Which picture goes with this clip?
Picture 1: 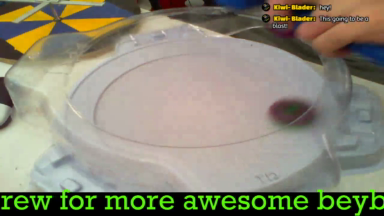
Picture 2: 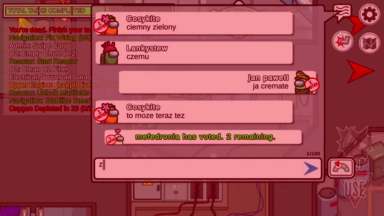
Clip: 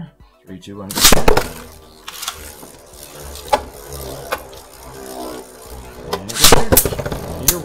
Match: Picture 1